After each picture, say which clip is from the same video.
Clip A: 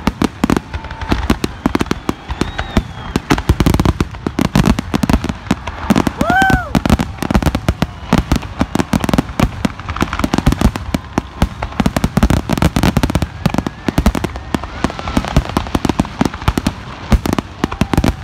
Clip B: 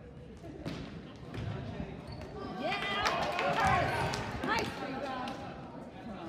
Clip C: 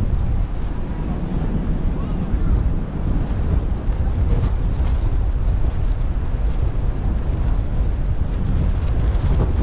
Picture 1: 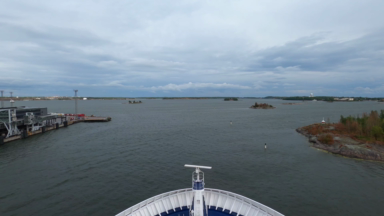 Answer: C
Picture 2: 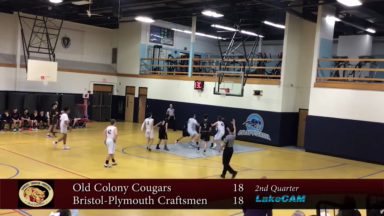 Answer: B